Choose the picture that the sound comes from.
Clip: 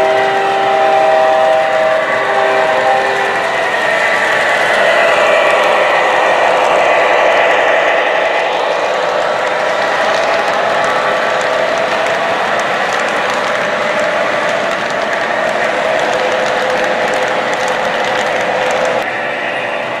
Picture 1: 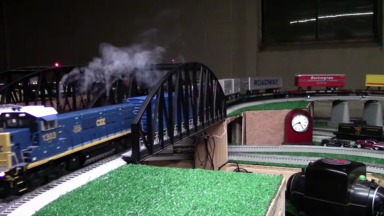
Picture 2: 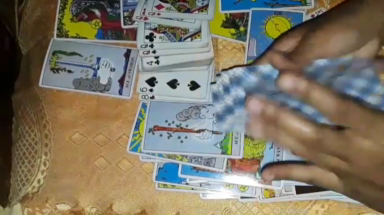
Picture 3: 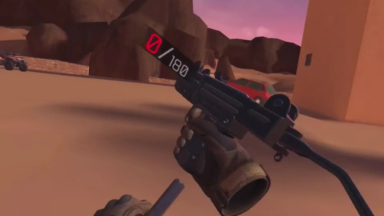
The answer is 1